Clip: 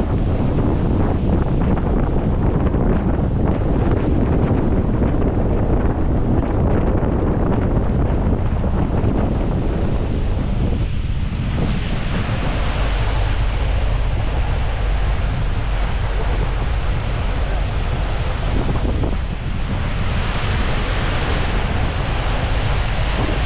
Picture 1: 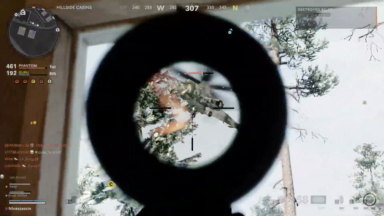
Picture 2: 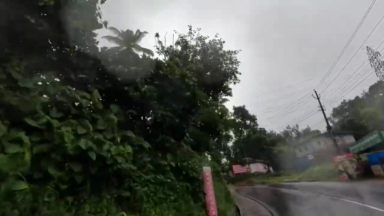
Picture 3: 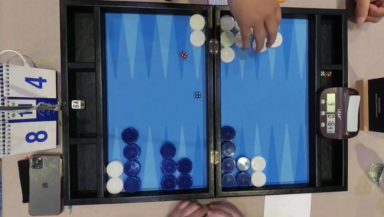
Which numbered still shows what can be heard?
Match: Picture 2